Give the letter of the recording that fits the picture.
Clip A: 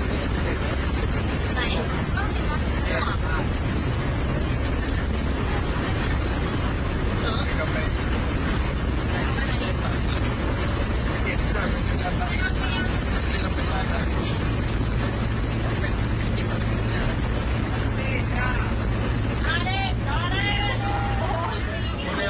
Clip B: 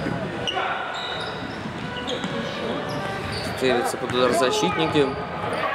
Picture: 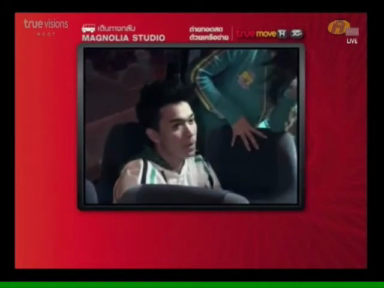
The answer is A